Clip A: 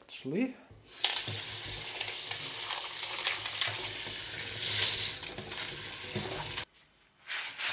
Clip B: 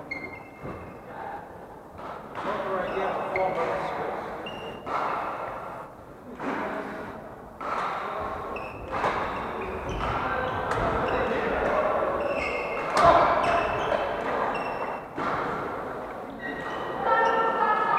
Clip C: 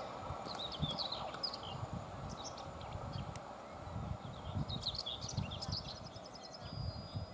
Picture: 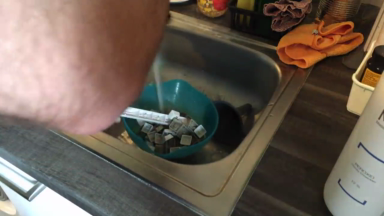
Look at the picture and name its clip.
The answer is A